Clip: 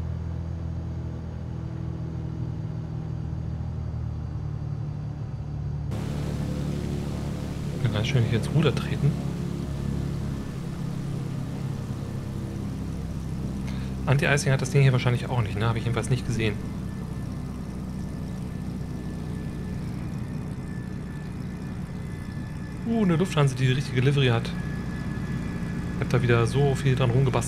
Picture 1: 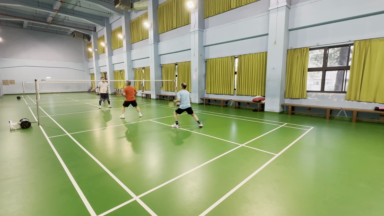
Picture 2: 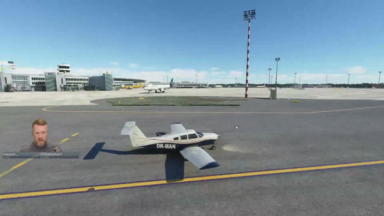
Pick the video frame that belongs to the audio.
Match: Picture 2